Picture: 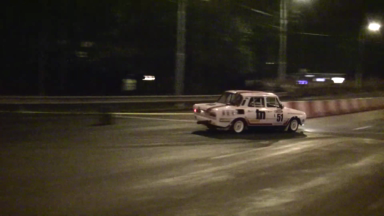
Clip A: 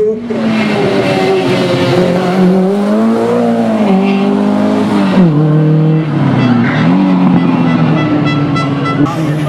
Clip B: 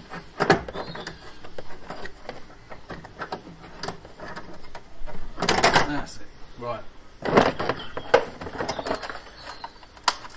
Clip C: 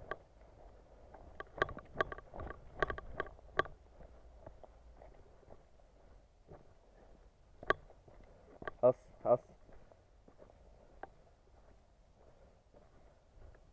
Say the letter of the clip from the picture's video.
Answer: A